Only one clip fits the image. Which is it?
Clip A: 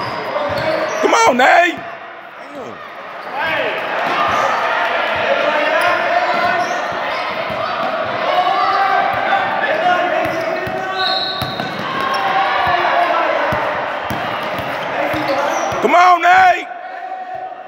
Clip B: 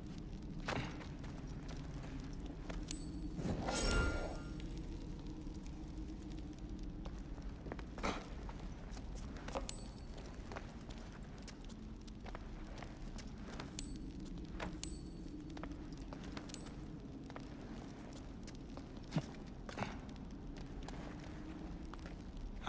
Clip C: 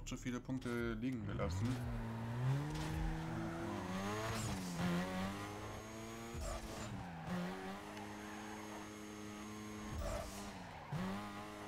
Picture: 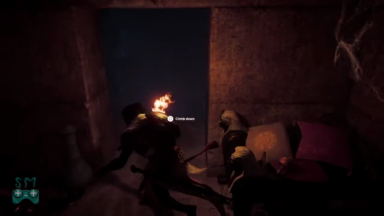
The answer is B